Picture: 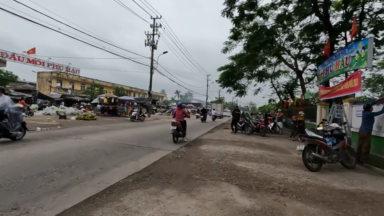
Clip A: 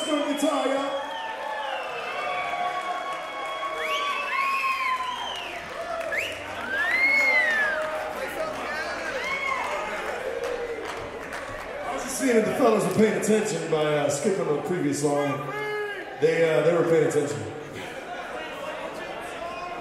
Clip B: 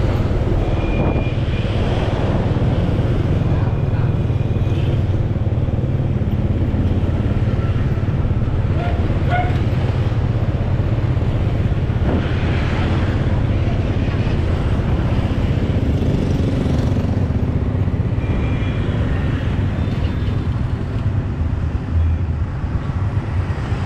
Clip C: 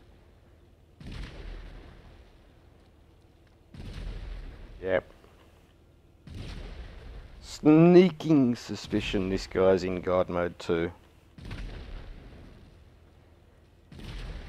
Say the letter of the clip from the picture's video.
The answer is B